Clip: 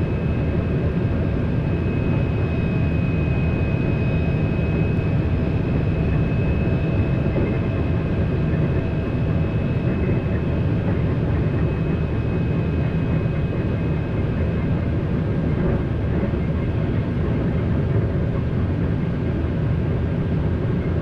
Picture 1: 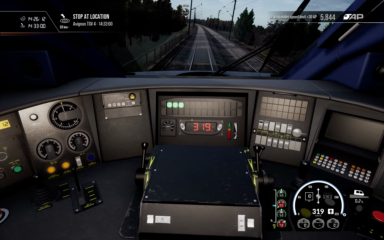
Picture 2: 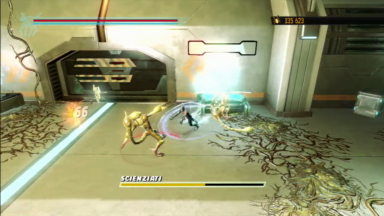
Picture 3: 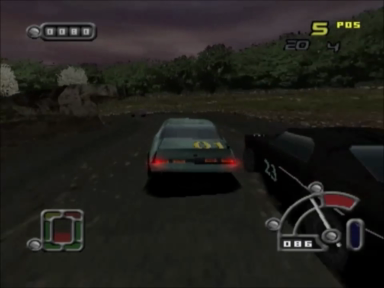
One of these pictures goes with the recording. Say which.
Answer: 1